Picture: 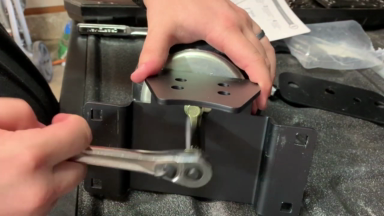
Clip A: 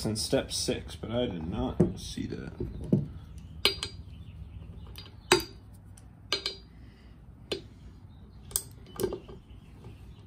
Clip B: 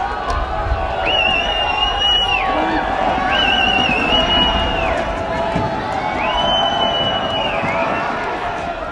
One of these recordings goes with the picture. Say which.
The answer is A